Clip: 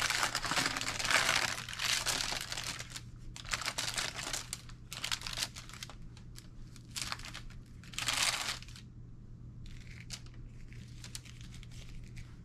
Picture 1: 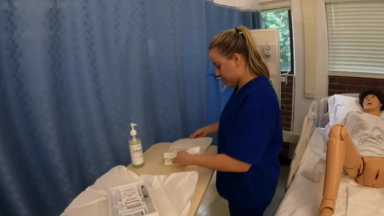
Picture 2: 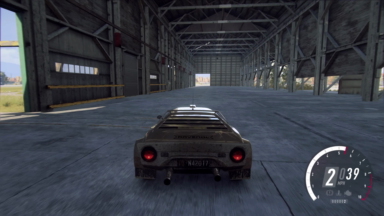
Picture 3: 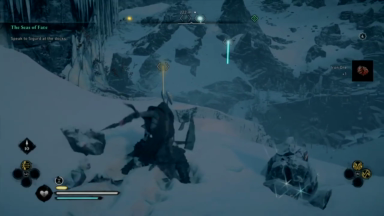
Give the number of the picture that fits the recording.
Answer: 1